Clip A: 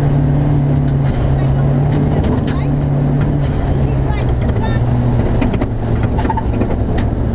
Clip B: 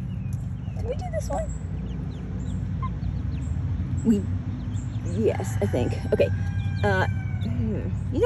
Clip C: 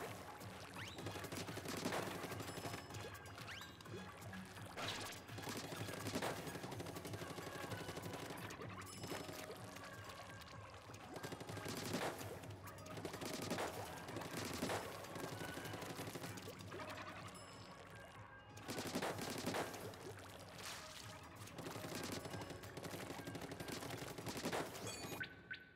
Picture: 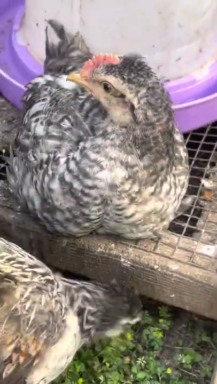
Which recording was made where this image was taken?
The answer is B